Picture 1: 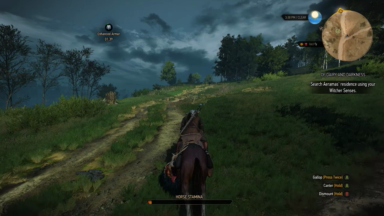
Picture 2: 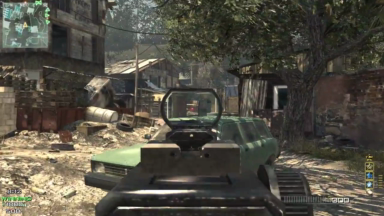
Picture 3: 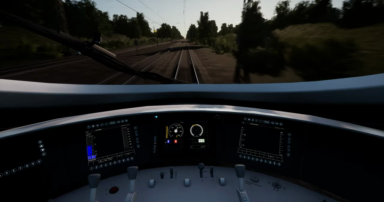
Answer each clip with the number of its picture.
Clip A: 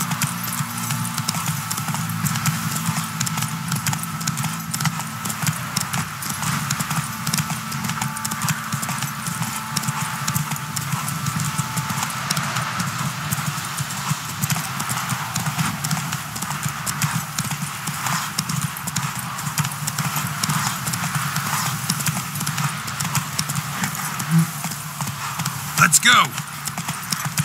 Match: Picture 1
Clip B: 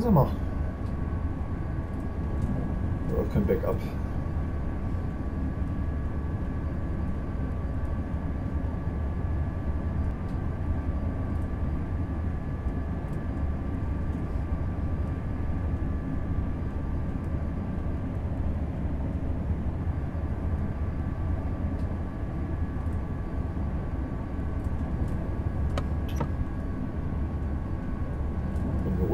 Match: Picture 3